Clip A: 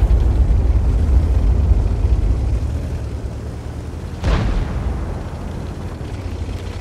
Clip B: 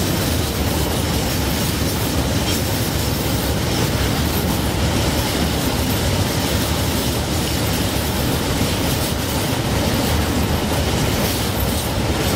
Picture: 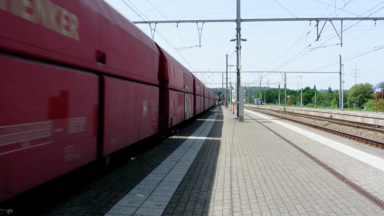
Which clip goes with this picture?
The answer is B